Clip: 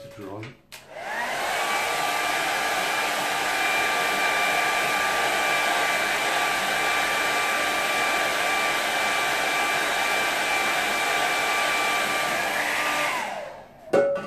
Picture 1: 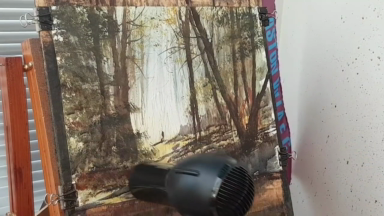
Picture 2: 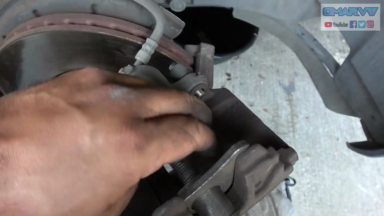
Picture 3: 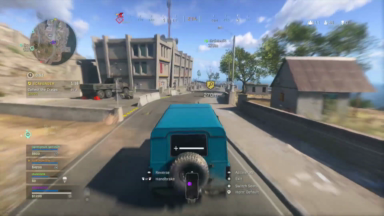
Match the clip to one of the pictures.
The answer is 1